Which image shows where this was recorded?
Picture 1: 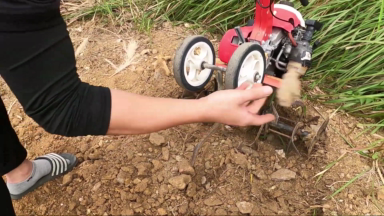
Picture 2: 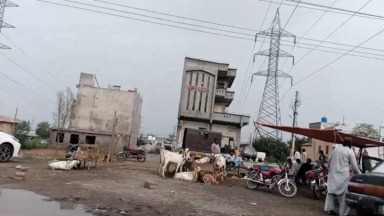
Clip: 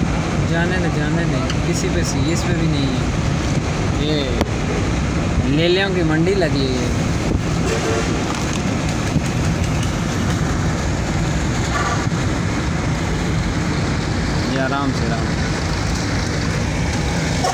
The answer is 2